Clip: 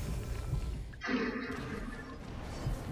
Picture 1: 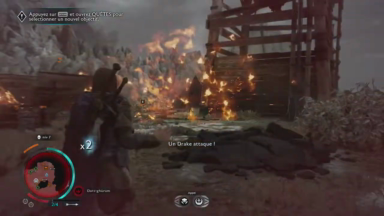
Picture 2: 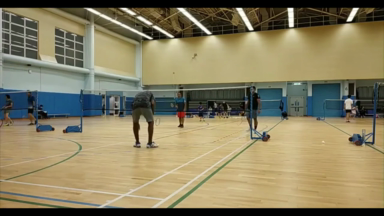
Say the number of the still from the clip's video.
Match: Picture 1